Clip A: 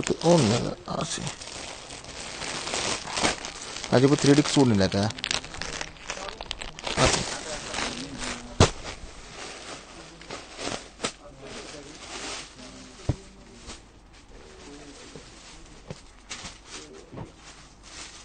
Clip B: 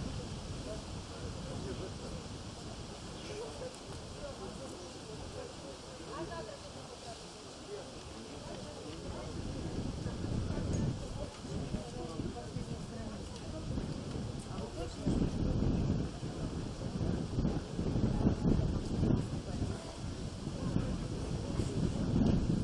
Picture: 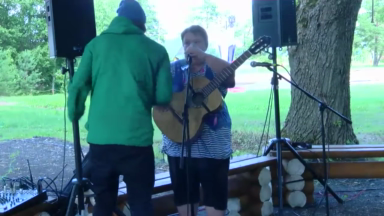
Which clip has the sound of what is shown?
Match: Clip B